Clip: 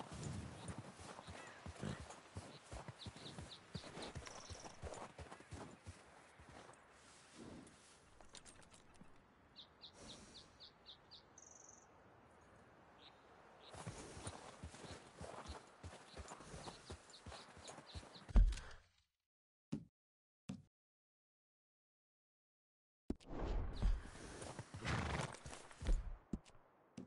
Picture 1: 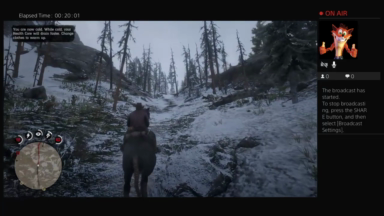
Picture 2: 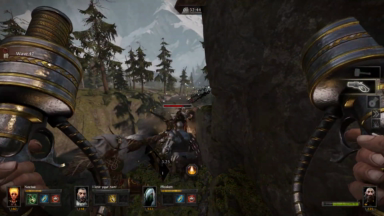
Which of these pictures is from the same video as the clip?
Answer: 1